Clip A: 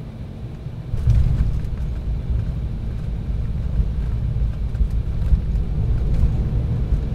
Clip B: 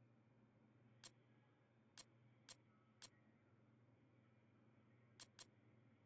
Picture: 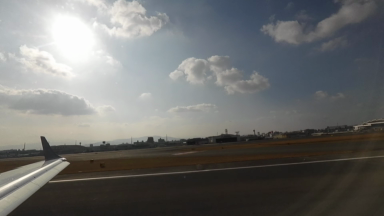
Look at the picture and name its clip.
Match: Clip A